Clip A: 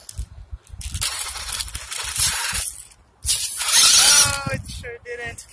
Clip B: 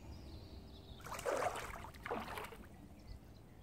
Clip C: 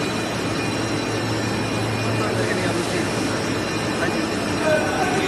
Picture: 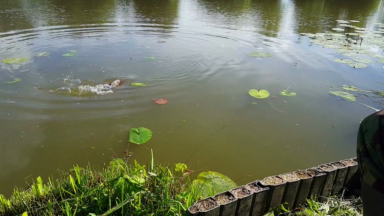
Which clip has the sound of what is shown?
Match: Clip B